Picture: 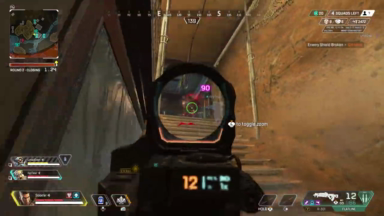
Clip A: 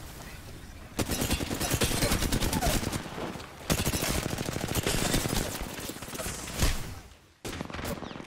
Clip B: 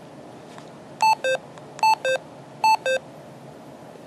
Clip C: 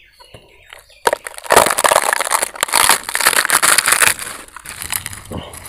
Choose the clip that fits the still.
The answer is A